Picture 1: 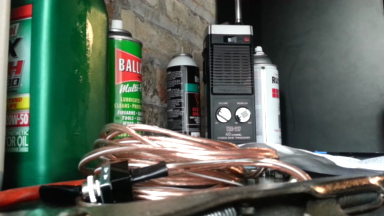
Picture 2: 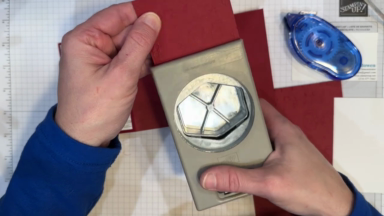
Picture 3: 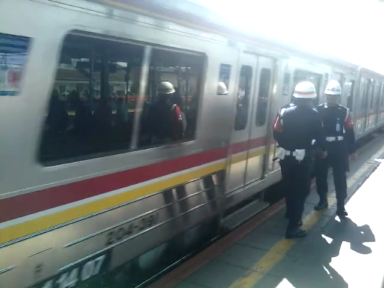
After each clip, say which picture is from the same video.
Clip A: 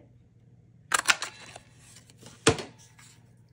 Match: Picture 2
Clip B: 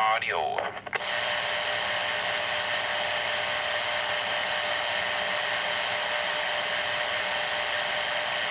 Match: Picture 1